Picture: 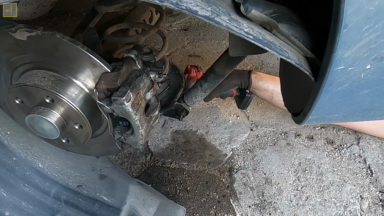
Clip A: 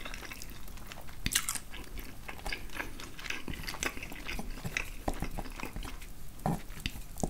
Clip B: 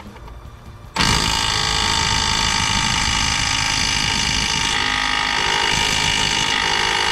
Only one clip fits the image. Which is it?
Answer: B